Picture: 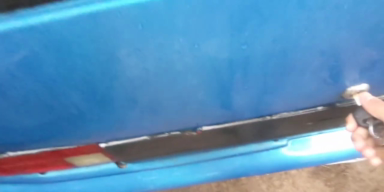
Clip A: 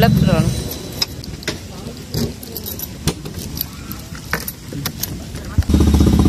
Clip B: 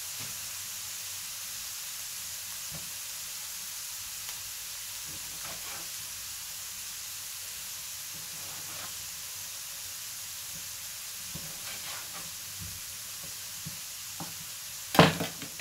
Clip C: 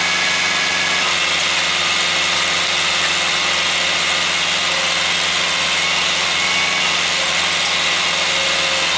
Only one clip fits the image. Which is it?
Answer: A